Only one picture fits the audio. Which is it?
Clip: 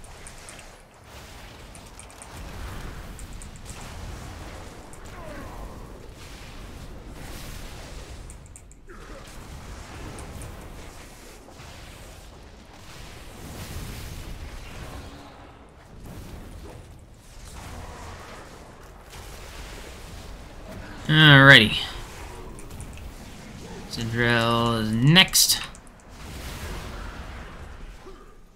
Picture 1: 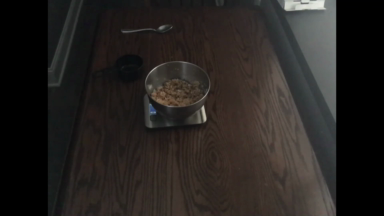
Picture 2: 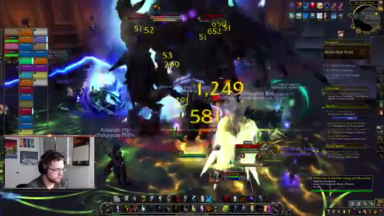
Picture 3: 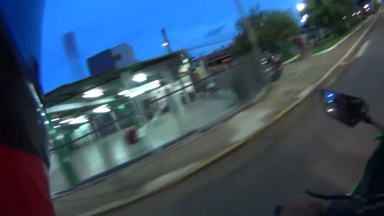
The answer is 2